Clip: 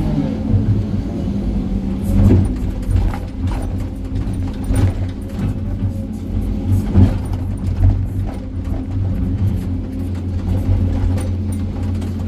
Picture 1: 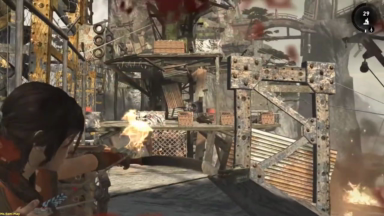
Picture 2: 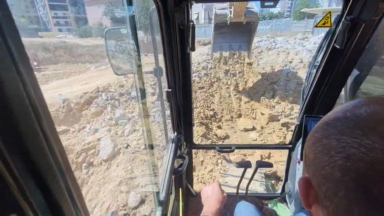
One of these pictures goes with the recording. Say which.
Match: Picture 2